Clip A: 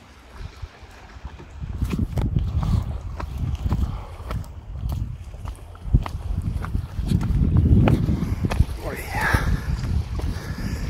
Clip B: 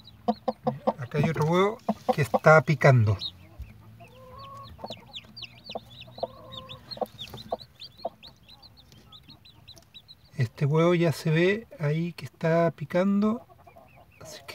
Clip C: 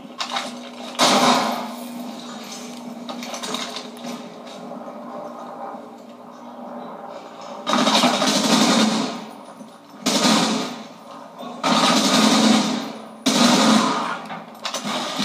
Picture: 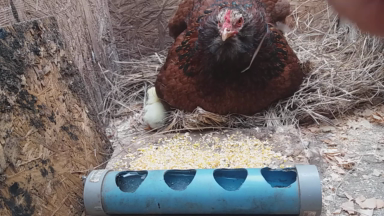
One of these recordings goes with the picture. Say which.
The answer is B